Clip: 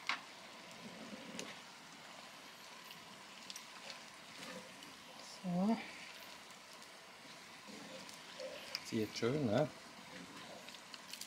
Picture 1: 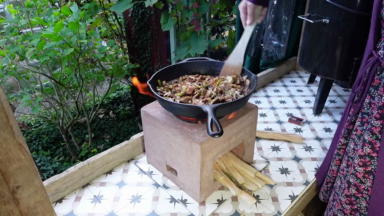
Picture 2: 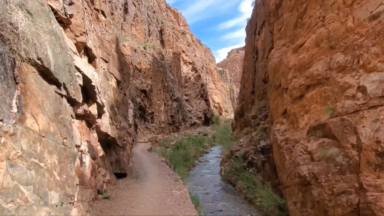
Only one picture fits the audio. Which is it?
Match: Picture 1